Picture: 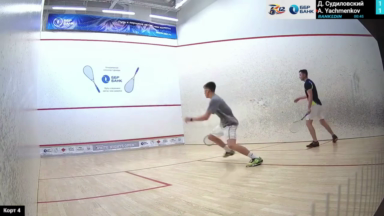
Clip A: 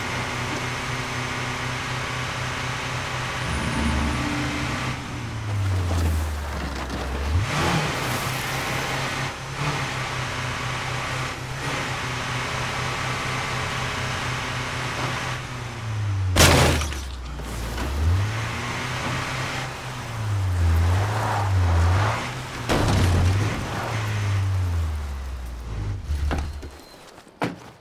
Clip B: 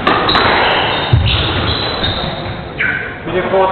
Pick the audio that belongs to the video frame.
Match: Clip B